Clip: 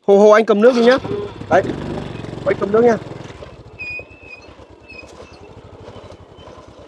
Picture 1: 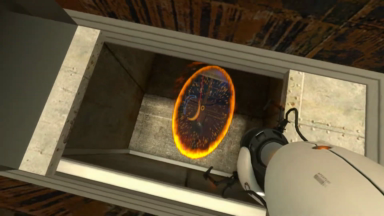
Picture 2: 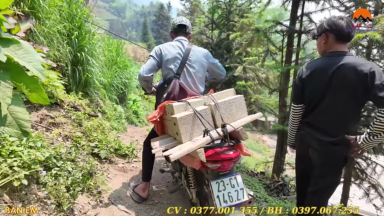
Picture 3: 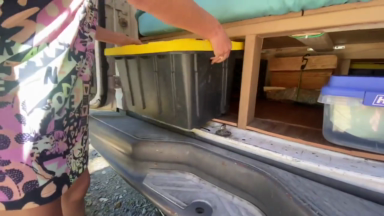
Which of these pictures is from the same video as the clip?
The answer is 2